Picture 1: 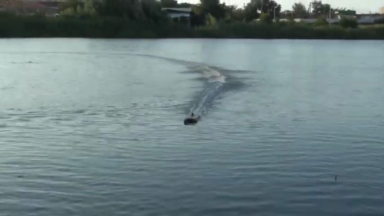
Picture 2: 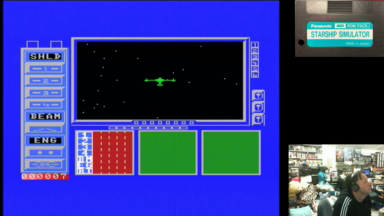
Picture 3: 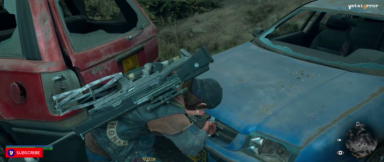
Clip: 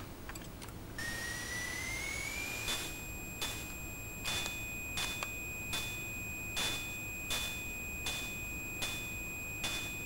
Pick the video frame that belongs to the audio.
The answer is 2